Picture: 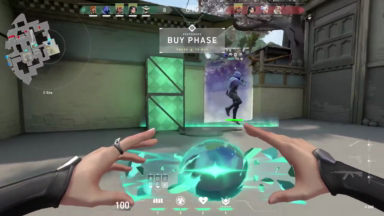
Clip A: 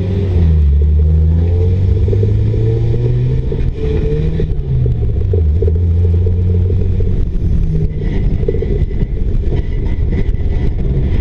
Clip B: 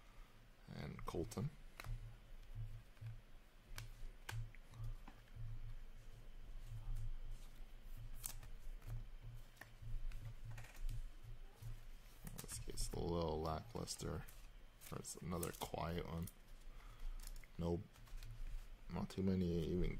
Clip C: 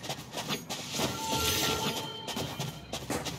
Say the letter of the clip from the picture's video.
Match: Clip C